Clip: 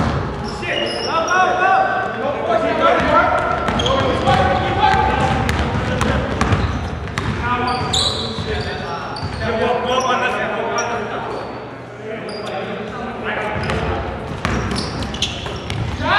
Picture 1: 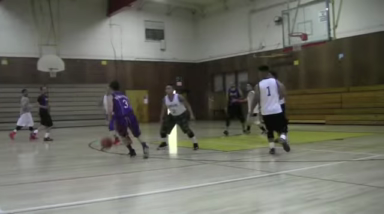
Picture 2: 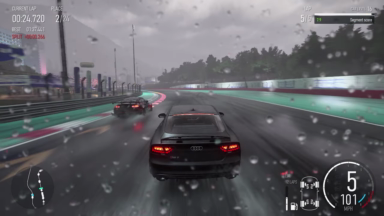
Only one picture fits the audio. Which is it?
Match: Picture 1